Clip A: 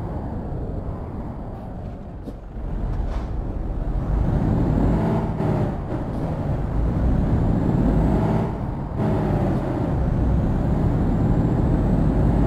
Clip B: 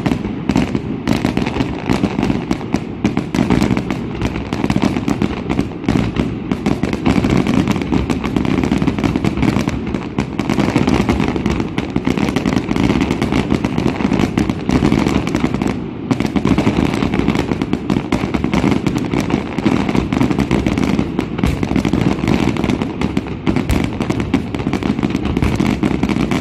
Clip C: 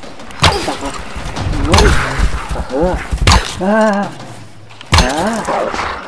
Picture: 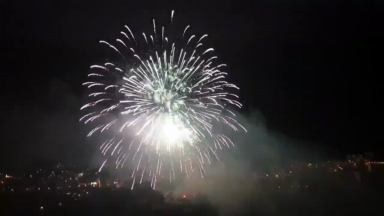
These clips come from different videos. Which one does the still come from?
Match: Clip B